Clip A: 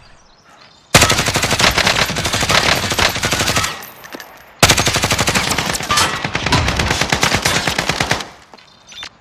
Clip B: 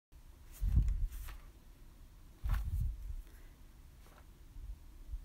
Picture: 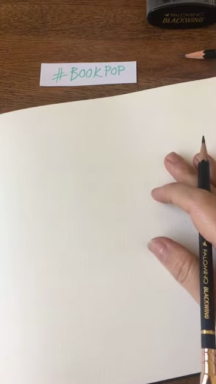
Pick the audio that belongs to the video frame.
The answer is B